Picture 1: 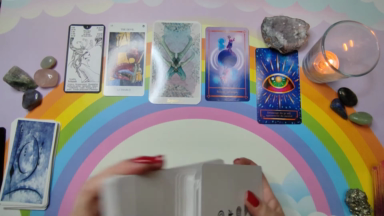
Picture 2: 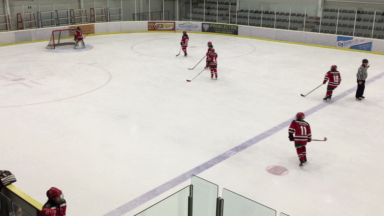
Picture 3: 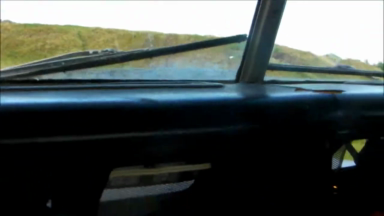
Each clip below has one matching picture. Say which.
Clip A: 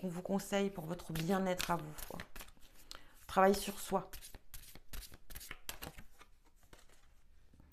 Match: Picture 1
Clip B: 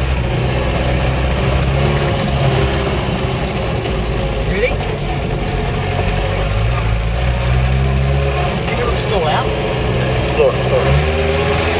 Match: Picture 3